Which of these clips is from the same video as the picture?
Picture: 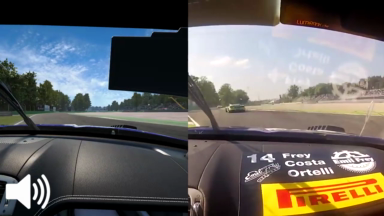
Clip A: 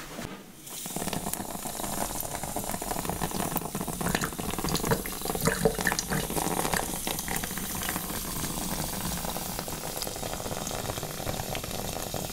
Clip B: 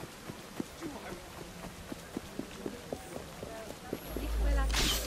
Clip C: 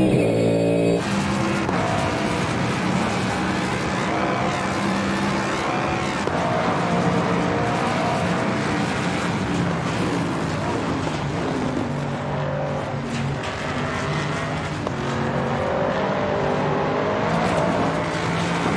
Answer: C